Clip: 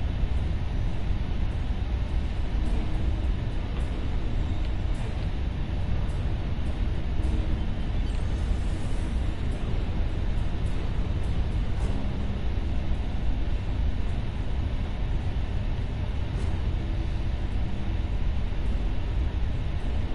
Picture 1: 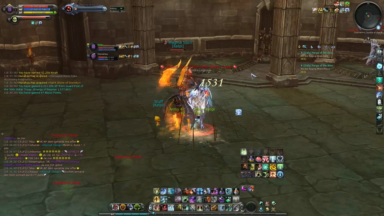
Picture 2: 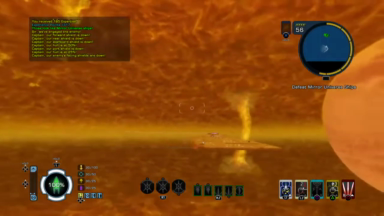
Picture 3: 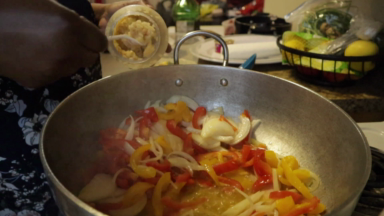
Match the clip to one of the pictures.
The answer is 2